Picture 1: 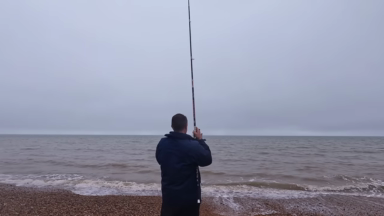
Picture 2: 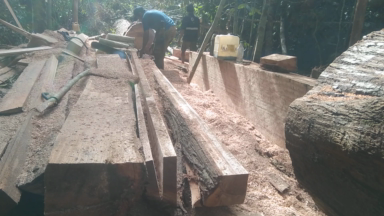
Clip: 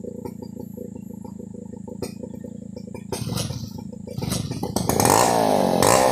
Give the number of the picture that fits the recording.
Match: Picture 2